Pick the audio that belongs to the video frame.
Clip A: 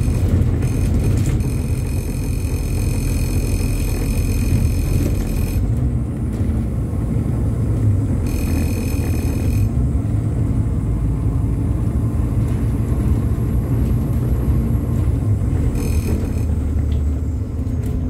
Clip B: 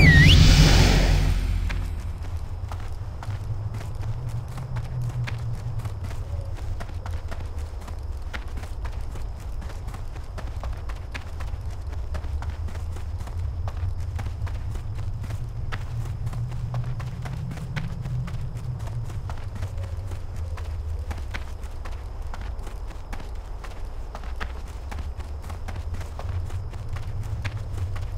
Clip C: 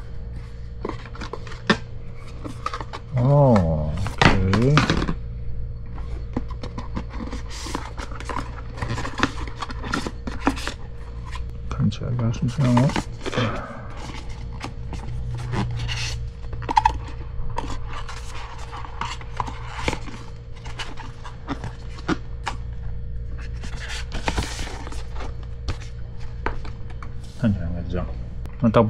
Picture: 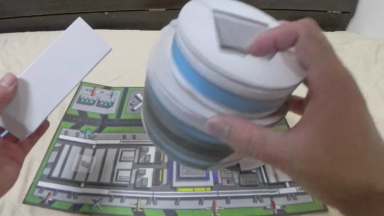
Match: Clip C